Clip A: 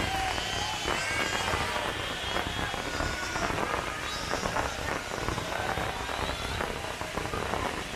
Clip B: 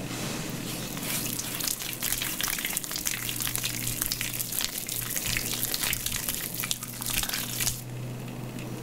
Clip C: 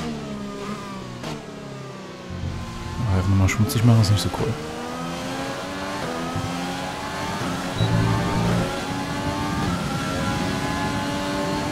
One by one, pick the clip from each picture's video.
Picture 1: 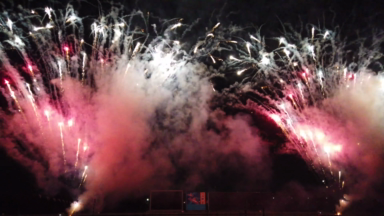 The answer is A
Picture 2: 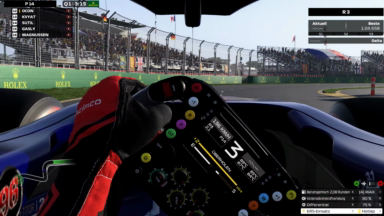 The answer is C